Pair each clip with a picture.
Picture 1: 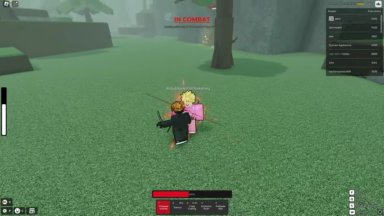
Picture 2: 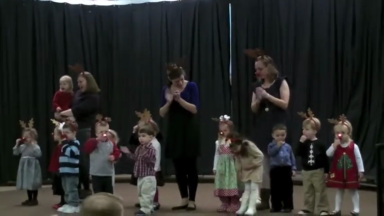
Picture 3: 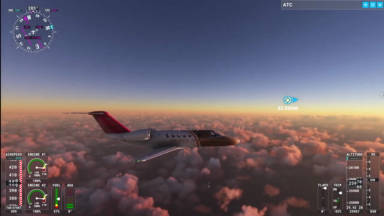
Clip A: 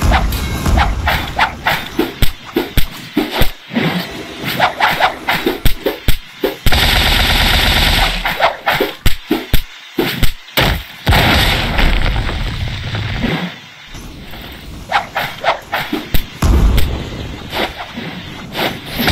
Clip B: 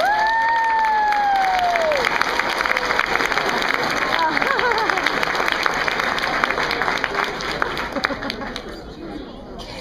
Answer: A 1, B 2